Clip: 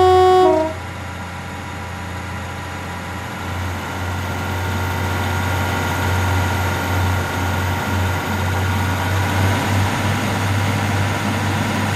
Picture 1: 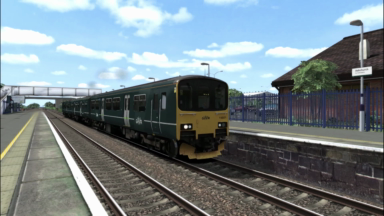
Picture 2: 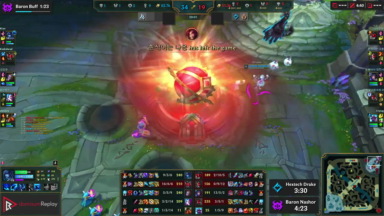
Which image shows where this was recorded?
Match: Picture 1